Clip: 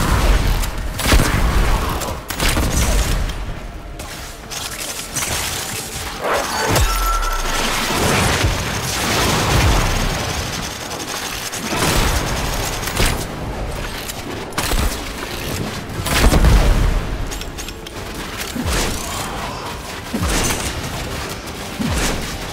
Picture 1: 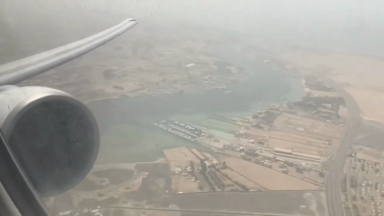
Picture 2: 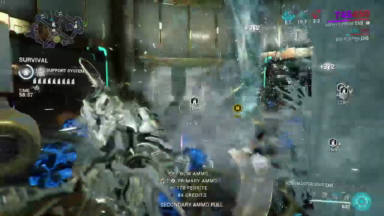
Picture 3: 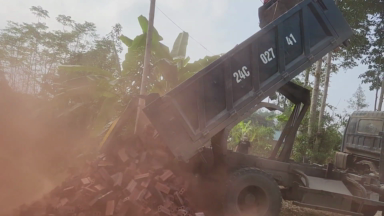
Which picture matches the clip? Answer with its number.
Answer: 2